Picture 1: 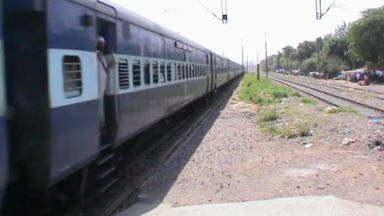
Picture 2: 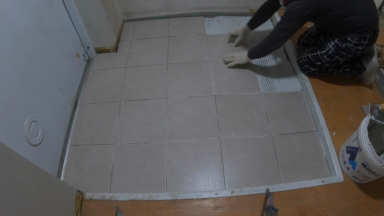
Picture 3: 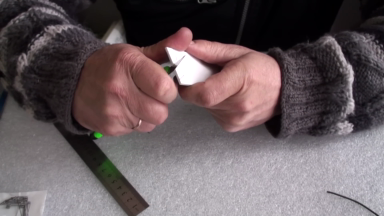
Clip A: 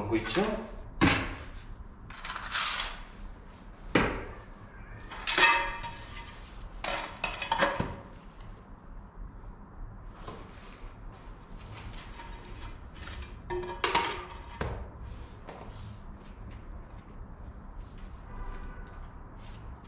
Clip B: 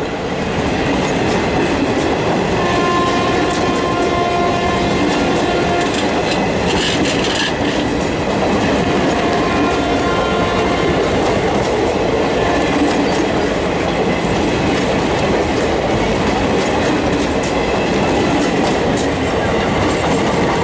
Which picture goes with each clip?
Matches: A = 2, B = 1